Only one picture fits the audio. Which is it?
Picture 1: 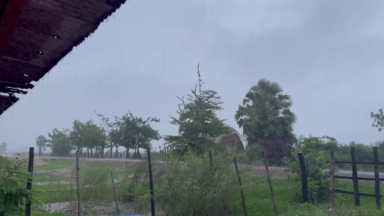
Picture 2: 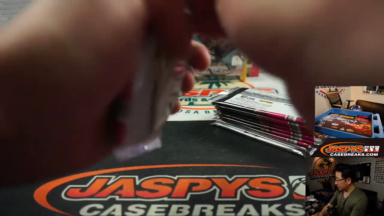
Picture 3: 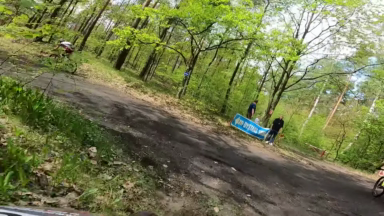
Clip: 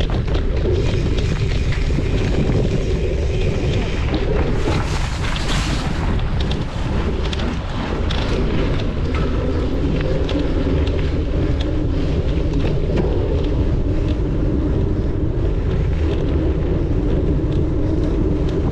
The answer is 3